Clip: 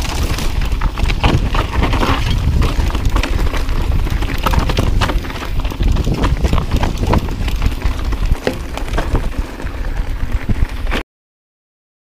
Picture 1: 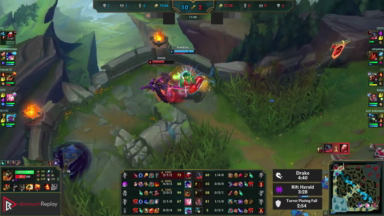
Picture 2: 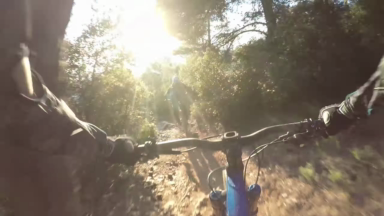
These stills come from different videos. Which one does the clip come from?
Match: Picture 2